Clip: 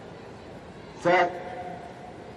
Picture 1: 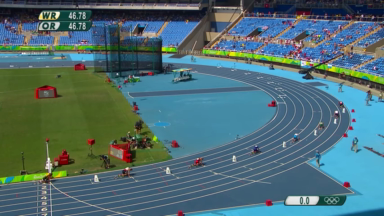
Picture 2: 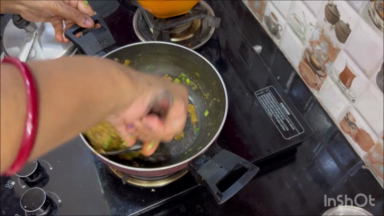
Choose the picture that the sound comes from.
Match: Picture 1